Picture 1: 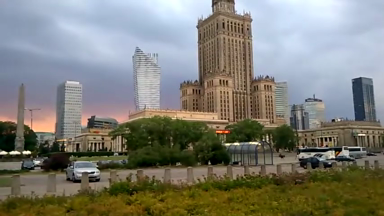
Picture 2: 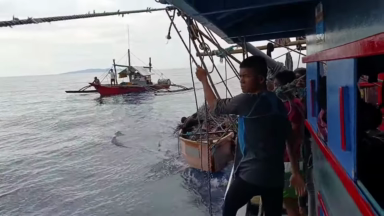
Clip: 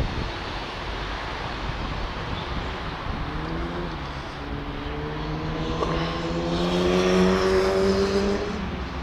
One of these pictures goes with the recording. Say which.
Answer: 1